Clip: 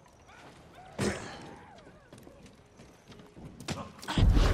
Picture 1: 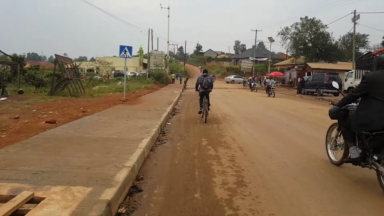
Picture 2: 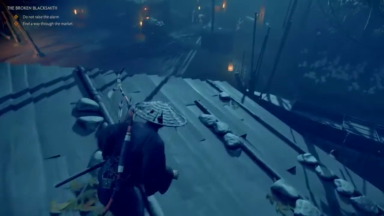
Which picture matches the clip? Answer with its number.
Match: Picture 2